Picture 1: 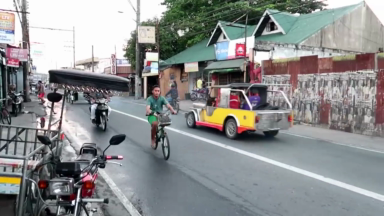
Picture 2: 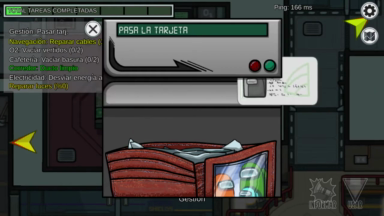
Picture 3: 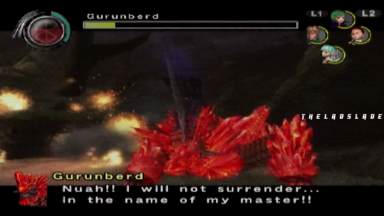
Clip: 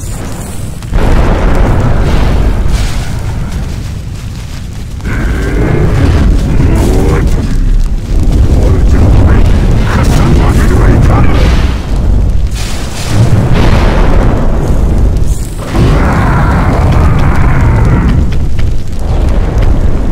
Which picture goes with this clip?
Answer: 3